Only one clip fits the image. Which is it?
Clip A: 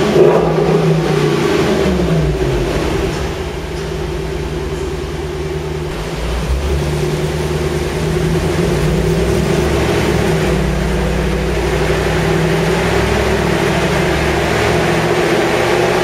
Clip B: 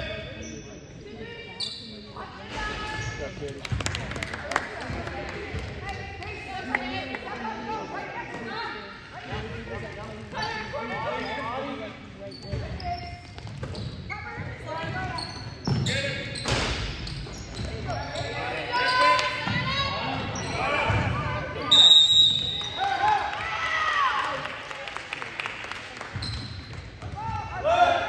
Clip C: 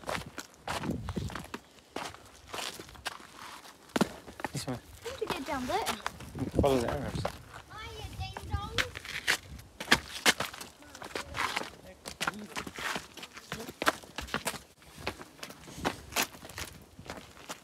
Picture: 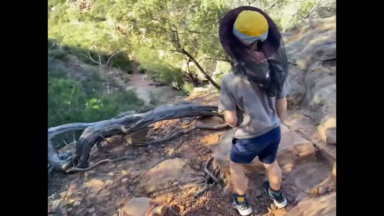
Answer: C